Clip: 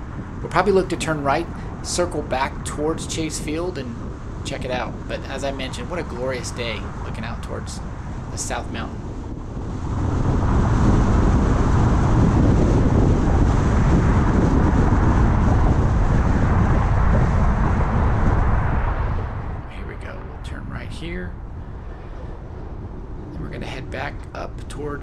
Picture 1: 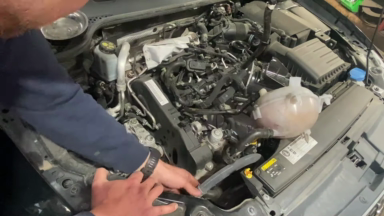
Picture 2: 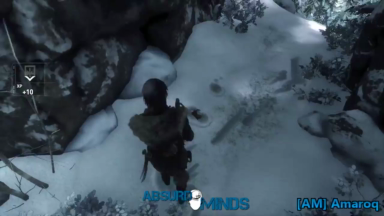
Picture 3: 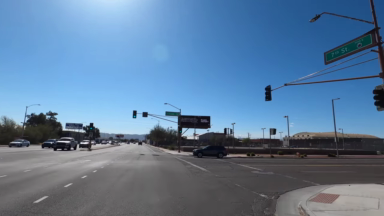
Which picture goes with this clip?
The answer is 3